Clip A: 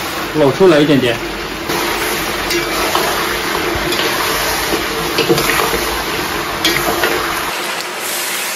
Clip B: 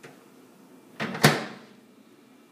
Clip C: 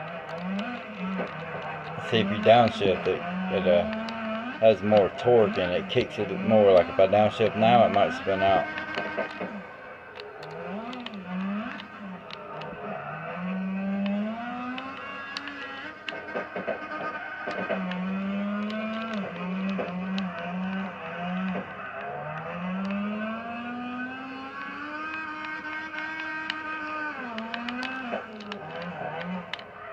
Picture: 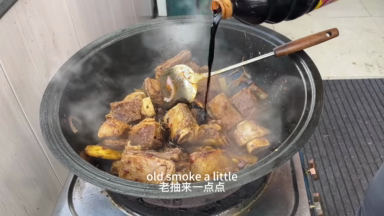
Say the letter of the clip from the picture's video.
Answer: A